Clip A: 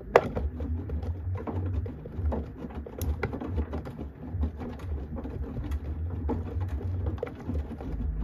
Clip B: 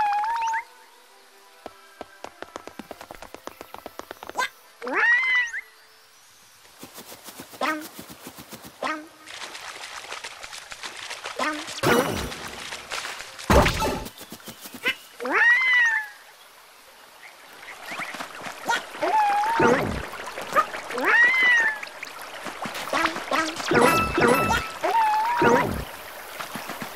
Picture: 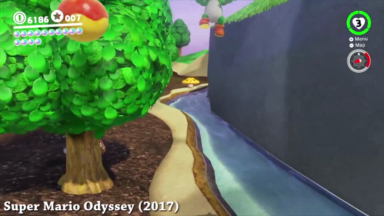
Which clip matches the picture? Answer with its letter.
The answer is B